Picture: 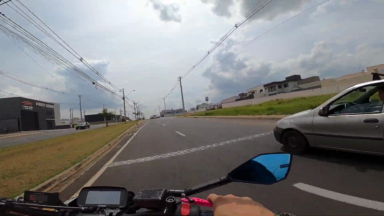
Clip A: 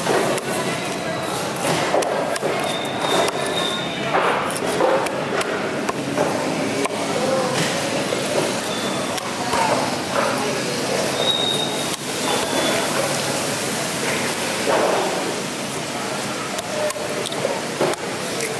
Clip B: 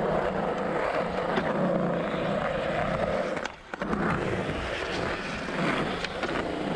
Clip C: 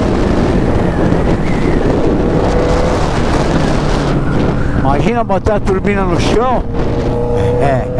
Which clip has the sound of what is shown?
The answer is C